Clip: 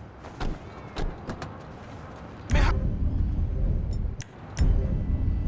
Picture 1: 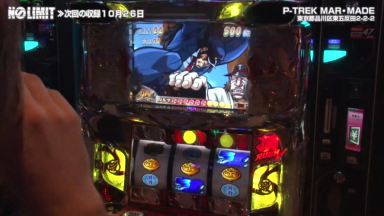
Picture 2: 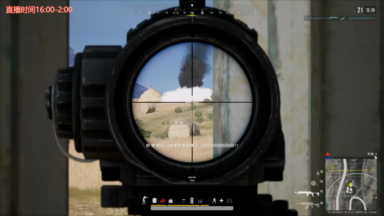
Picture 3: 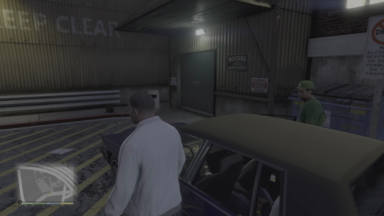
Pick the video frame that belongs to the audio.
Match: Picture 3